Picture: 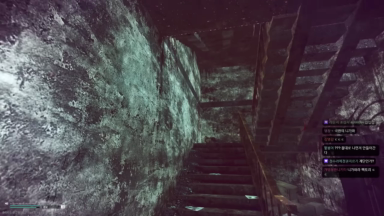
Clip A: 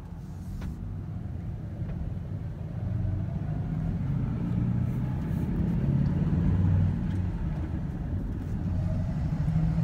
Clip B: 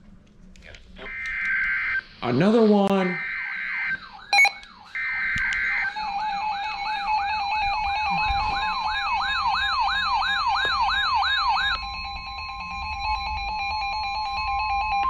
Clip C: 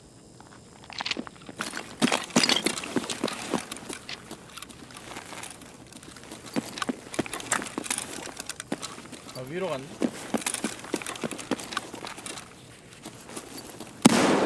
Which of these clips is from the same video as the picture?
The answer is C